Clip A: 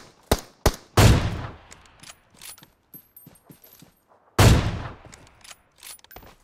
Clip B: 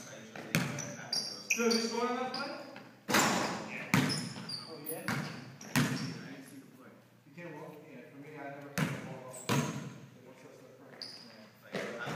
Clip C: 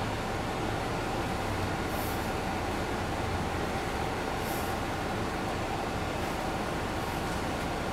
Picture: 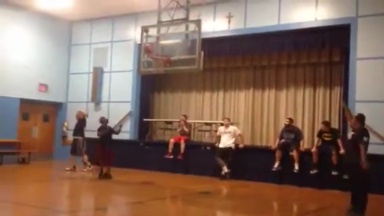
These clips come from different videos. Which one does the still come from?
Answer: B